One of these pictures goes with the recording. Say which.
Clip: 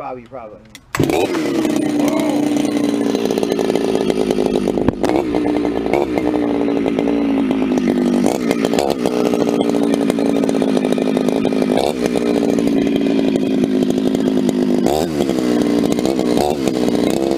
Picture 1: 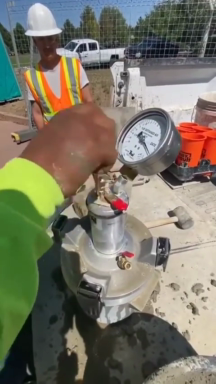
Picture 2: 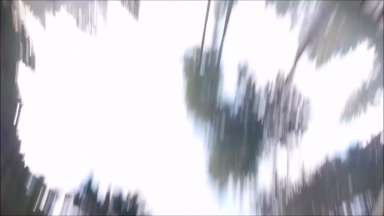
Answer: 2